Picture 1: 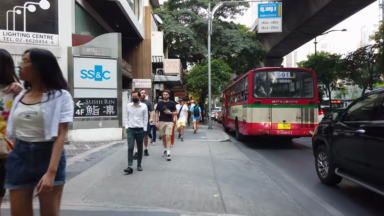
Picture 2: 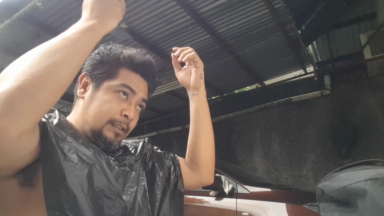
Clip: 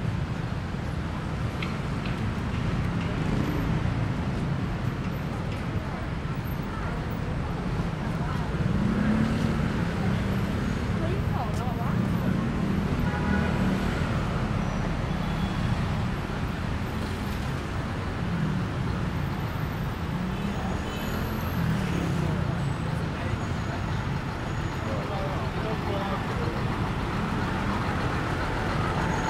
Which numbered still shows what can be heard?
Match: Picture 1